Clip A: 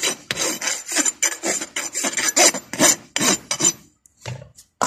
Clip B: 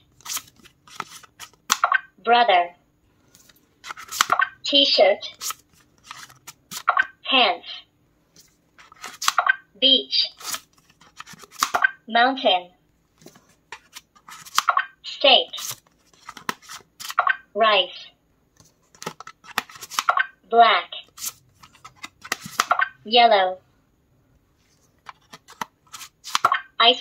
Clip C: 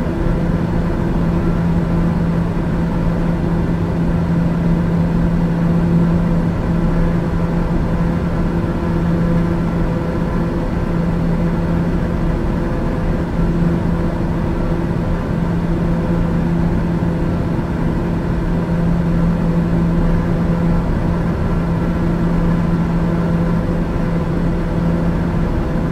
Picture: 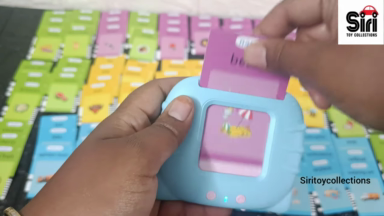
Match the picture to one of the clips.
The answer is B